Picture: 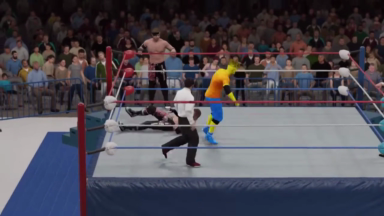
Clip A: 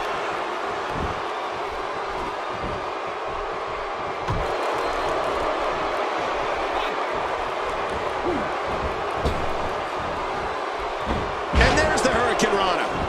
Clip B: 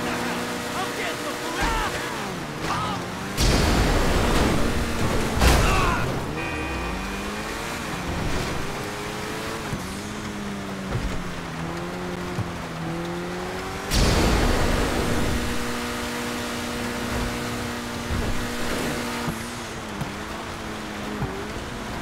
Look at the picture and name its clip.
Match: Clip A